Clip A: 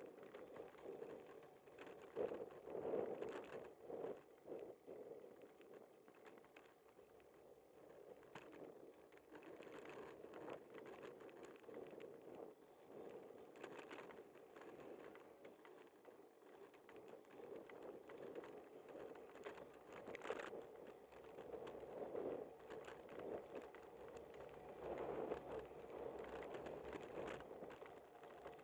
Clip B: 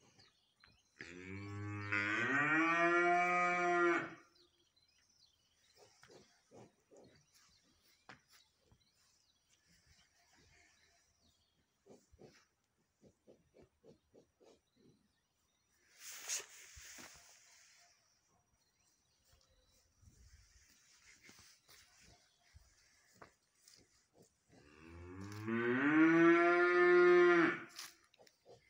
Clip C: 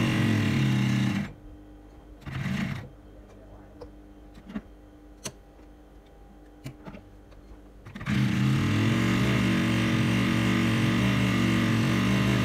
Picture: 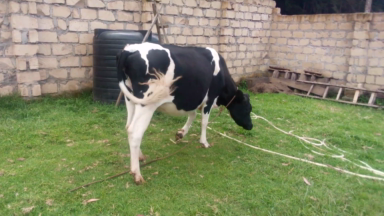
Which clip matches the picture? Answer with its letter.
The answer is B